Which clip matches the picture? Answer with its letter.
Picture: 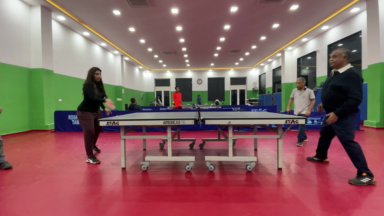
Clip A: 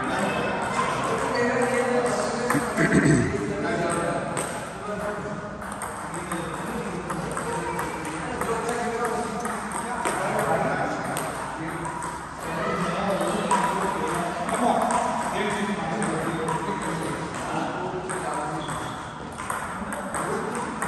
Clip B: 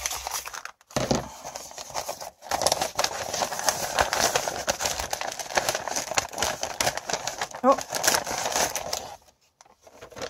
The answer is A